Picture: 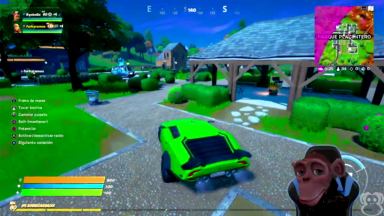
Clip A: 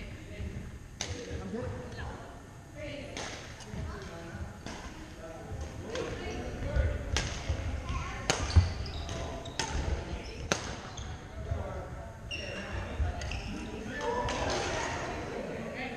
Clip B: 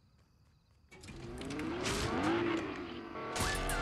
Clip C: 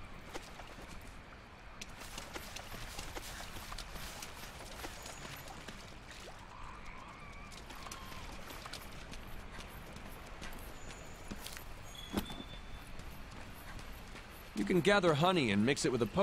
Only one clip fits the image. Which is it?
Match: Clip B